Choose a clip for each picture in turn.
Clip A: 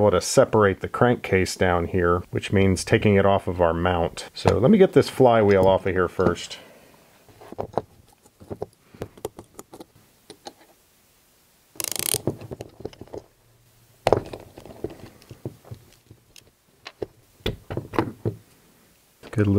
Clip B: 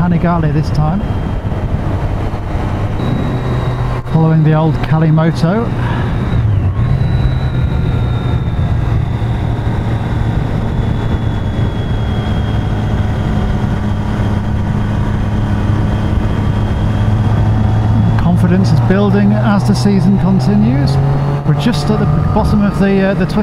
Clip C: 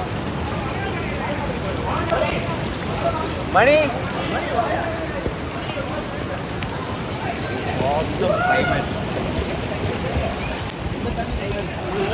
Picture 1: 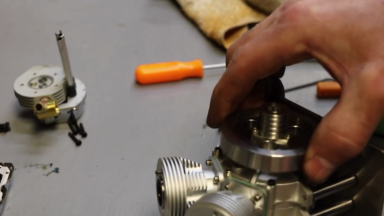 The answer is A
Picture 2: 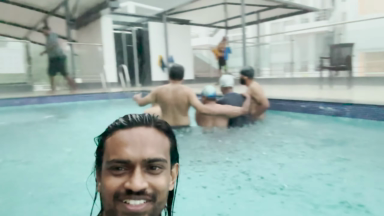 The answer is C